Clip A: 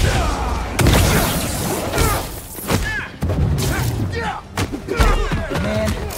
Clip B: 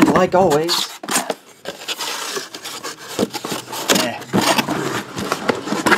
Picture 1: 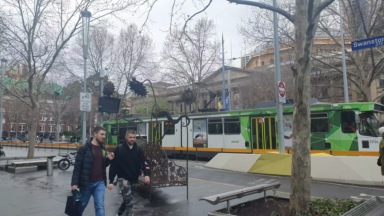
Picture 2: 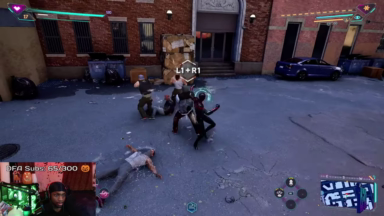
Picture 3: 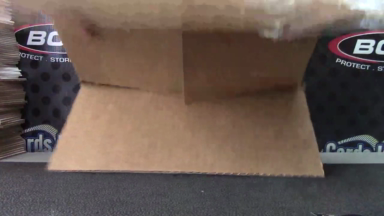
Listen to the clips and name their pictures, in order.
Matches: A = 2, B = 3